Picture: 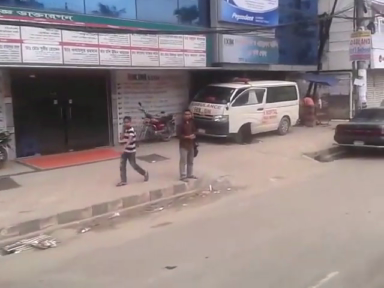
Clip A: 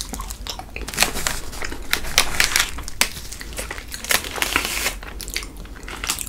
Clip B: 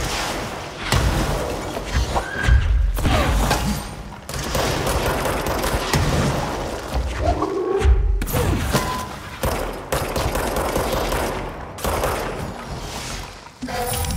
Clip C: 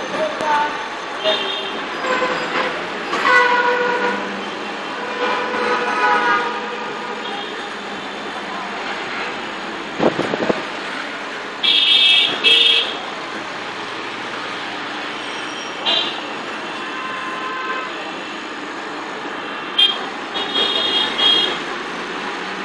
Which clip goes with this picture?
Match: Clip C